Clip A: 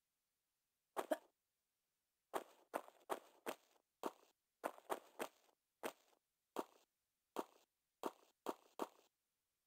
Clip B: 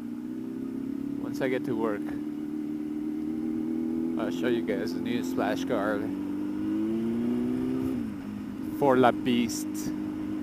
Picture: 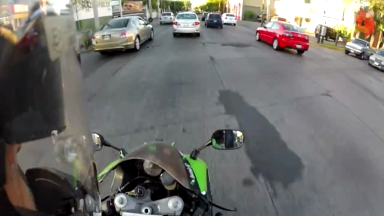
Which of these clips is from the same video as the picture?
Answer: B